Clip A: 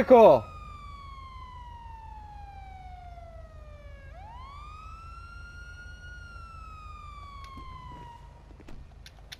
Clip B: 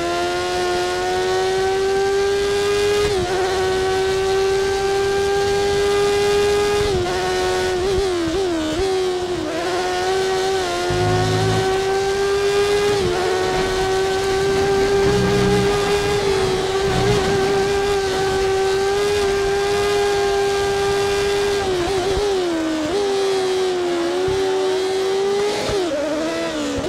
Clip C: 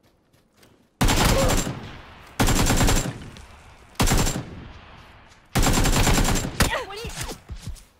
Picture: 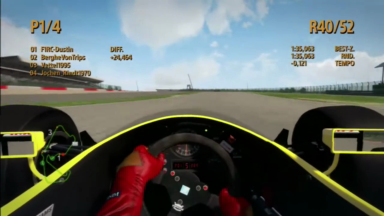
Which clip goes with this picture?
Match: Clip B